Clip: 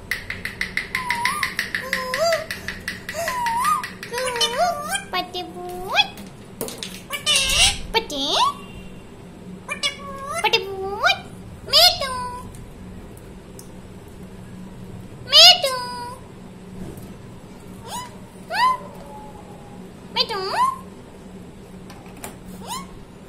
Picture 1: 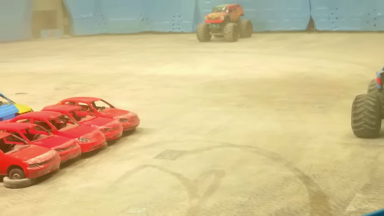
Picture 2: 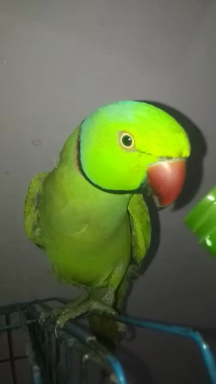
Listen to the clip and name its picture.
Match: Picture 2